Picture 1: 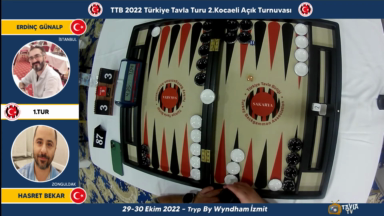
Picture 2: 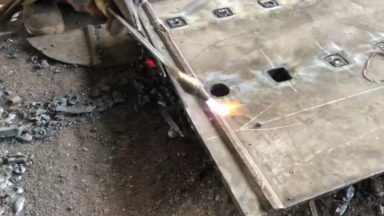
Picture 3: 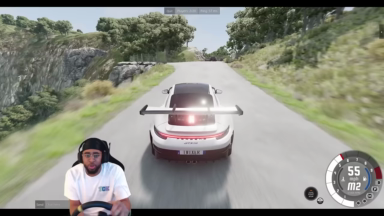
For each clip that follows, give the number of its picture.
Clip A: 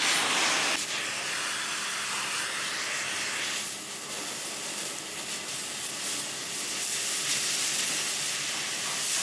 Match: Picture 2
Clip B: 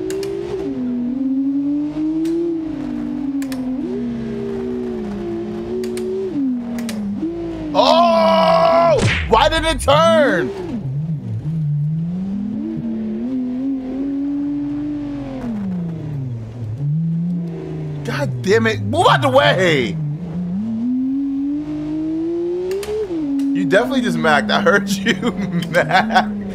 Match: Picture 3